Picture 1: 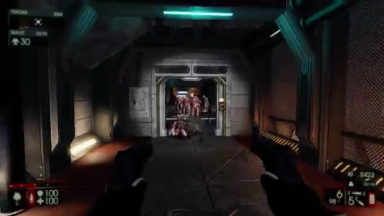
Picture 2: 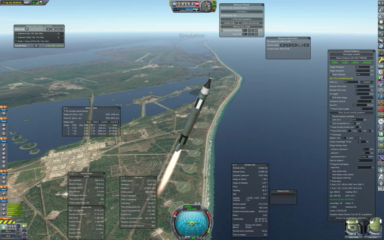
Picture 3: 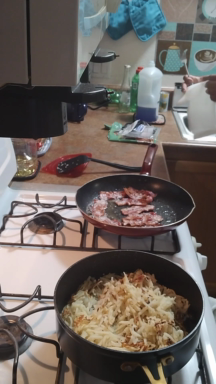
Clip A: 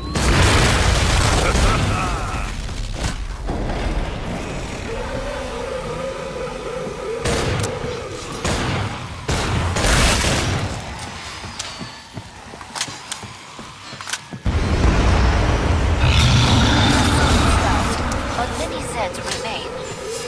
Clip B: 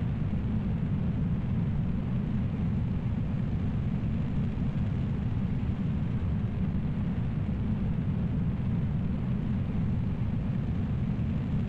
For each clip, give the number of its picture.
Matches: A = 1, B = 2